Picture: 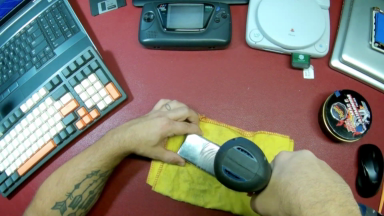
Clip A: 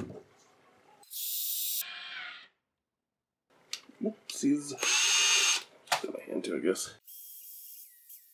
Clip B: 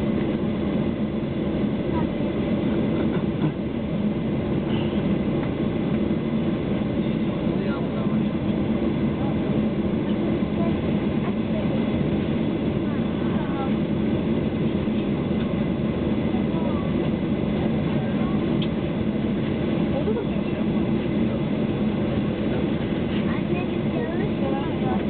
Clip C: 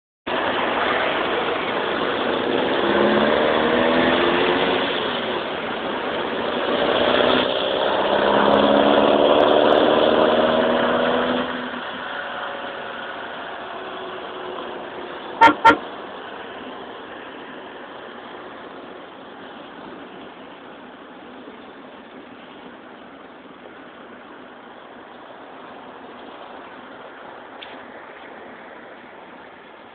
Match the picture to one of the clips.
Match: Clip A